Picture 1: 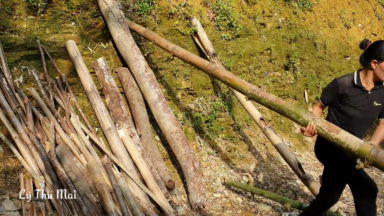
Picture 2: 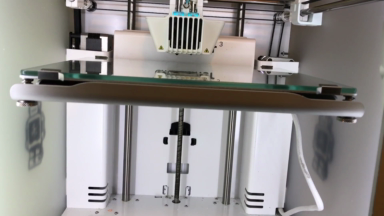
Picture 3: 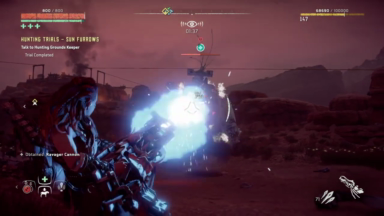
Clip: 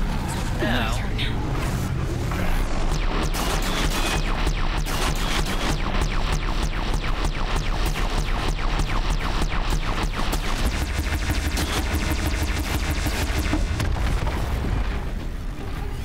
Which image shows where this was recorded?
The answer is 3